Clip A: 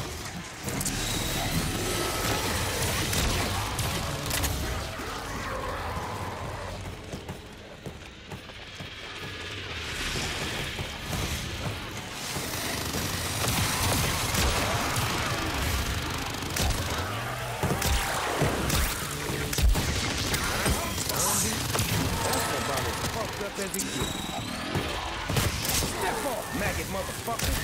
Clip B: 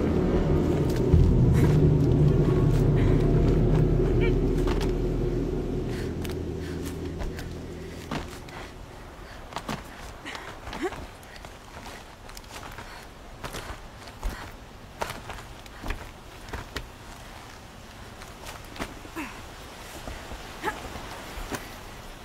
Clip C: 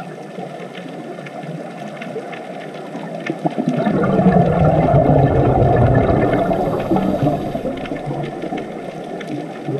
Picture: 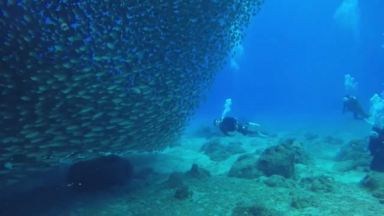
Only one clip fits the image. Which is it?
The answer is C